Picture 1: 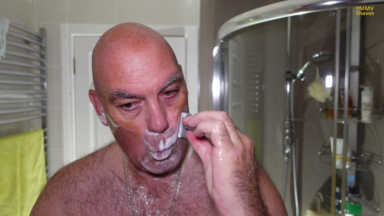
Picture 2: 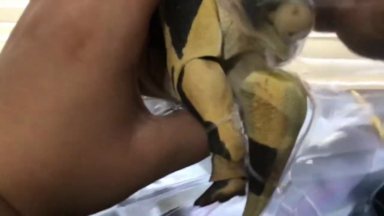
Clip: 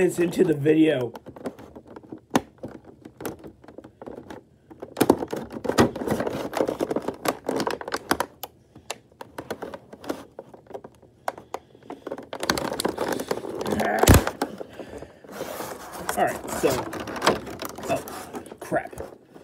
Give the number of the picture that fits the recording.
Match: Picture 2